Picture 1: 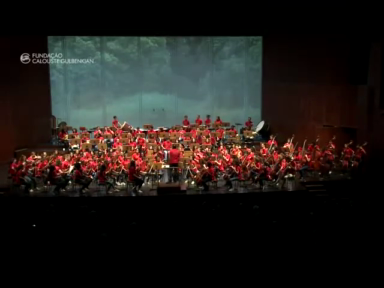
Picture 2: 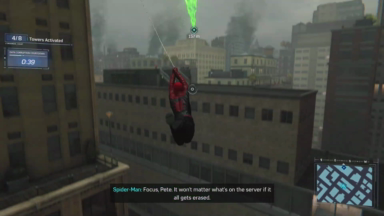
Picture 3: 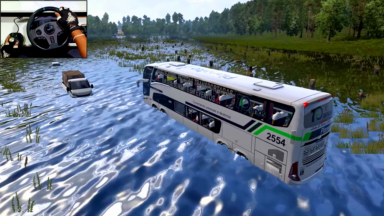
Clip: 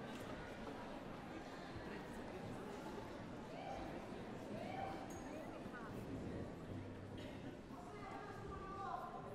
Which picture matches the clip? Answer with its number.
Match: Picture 1